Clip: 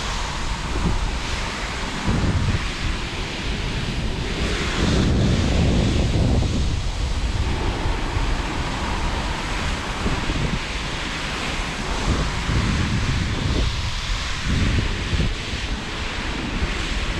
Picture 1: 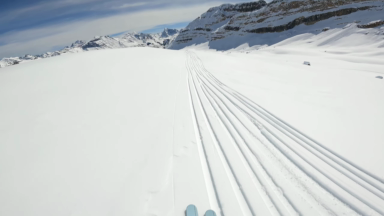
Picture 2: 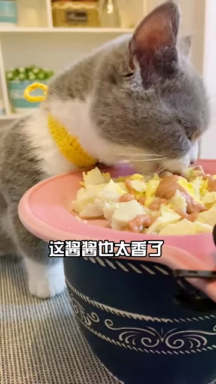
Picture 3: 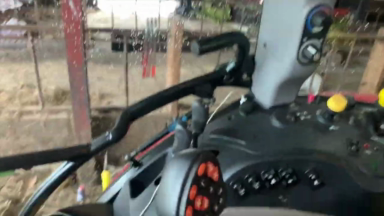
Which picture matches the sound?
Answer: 1